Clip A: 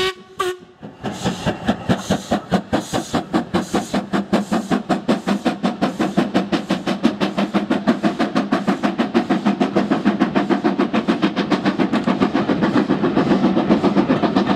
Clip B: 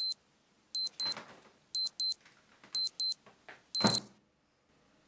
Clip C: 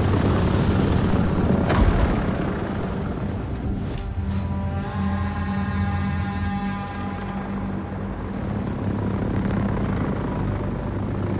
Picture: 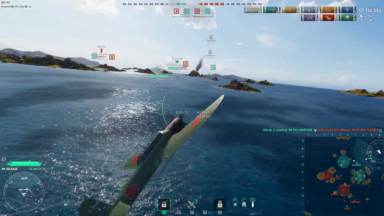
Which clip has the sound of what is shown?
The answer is C